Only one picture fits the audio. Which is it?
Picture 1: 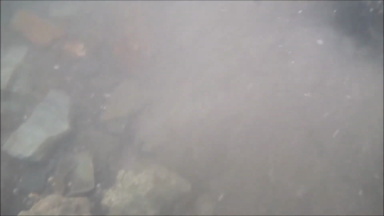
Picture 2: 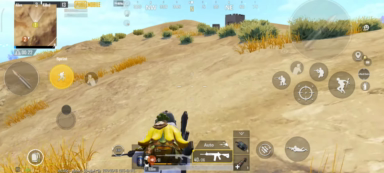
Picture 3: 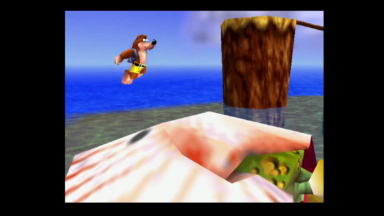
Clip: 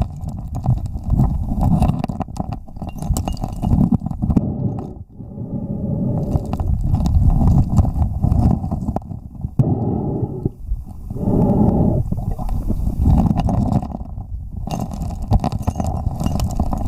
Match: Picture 1